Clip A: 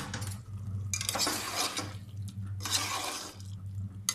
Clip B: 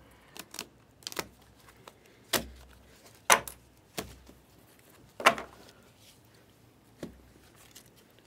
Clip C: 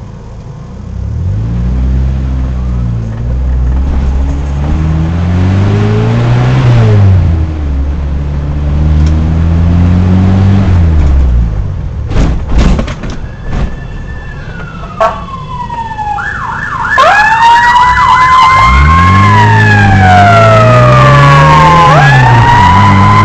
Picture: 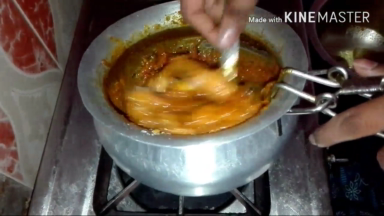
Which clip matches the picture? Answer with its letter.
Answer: A